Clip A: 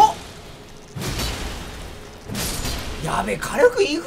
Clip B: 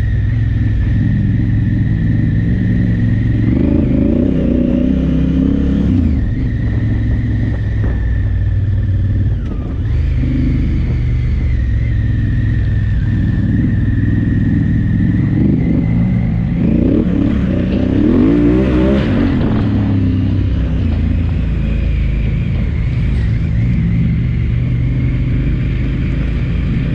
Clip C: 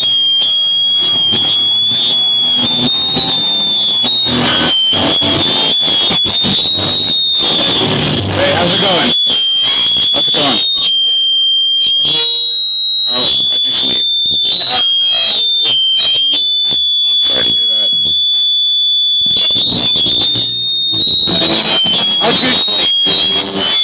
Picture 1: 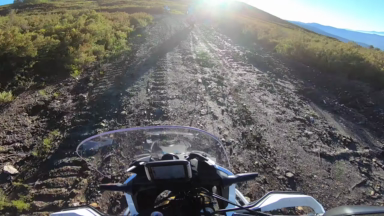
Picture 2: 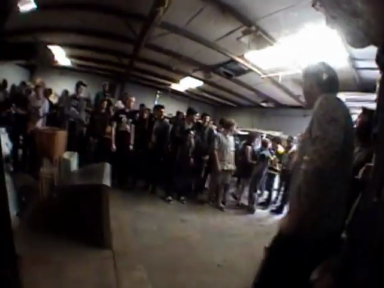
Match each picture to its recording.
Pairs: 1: B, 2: C